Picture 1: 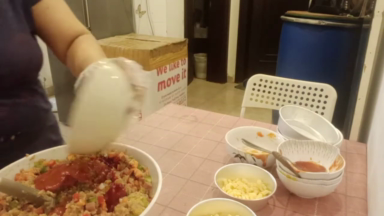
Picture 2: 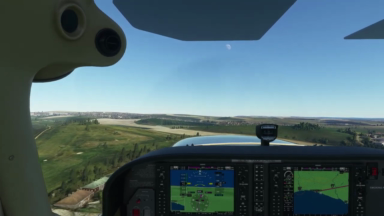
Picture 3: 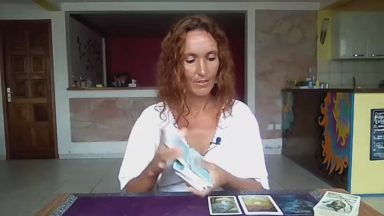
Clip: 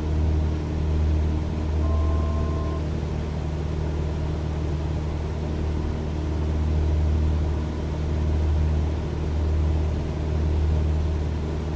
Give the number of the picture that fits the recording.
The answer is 2